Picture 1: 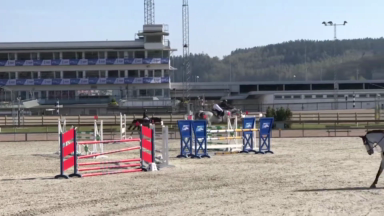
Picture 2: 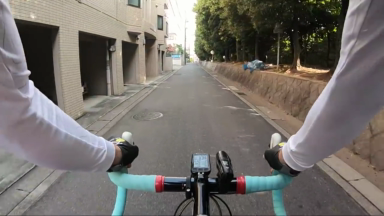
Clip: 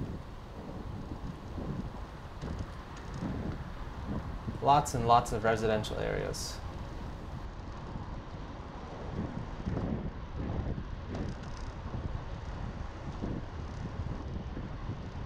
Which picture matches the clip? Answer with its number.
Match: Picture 2